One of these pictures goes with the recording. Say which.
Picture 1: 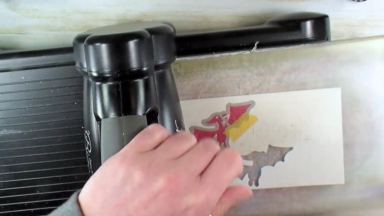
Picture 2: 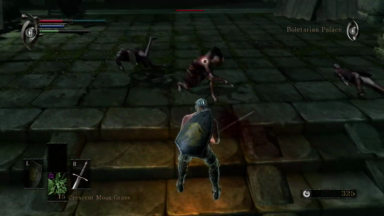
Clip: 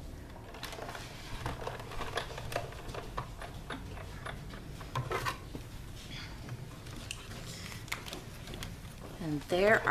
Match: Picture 1